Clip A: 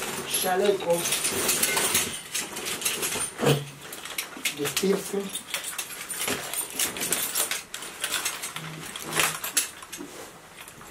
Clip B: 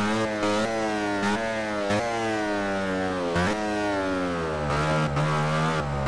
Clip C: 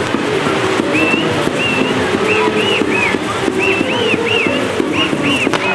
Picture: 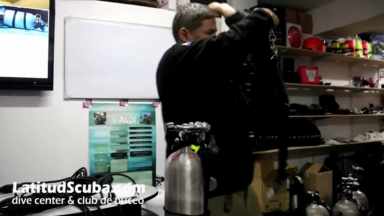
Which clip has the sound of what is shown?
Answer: A